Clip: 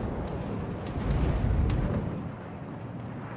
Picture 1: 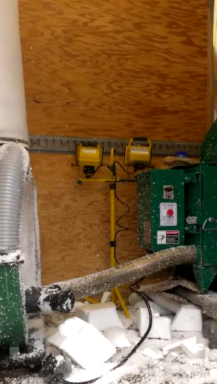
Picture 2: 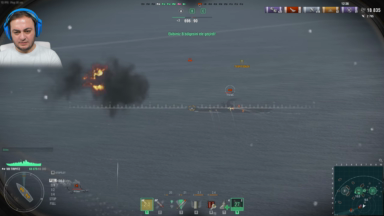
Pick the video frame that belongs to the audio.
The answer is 2